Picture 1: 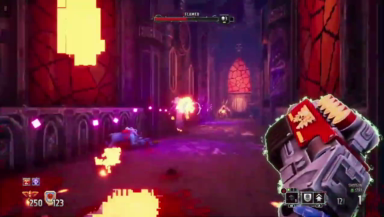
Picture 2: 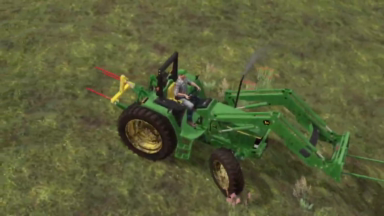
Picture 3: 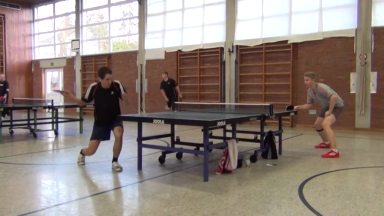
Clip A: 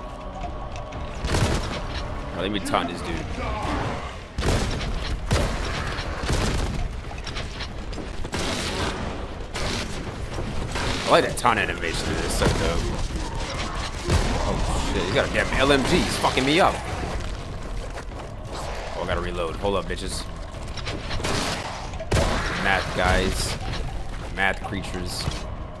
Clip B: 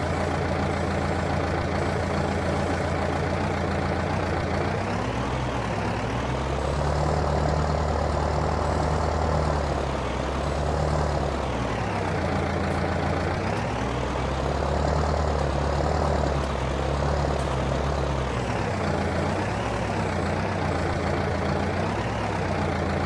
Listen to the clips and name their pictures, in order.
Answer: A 1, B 2